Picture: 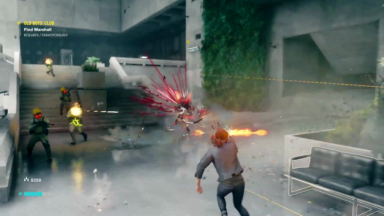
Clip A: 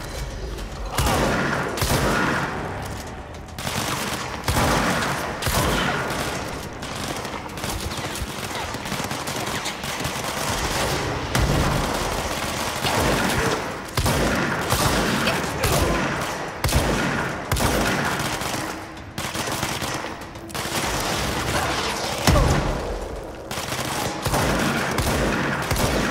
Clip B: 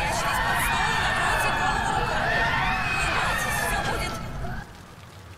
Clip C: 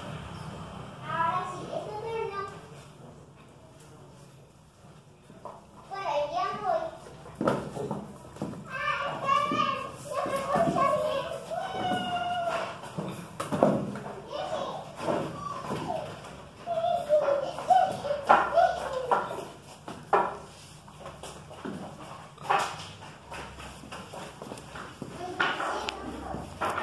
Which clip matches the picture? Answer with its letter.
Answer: A